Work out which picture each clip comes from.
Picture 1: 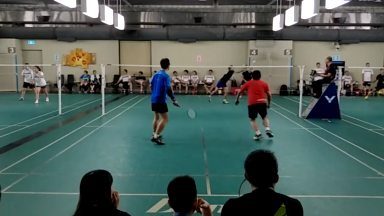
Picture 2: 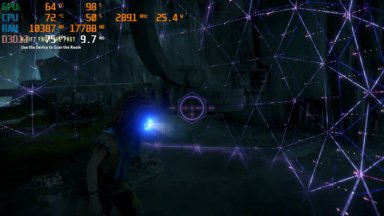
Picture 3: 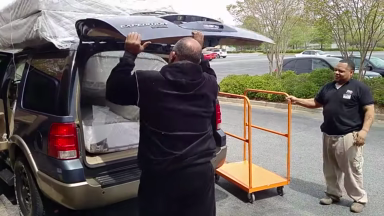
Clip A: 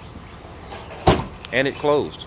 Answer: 3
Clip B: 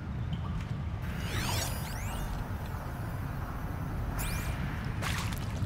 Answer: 2